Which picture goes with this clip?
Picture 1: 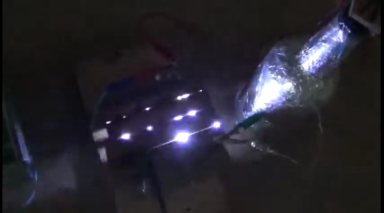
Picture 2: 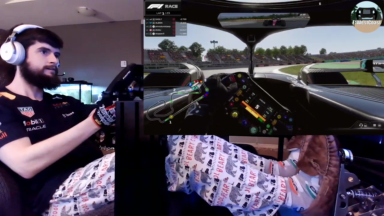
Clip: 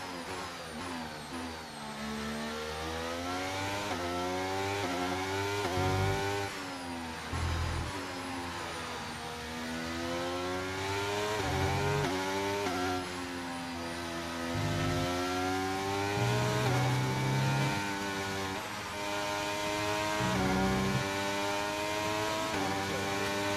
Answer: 2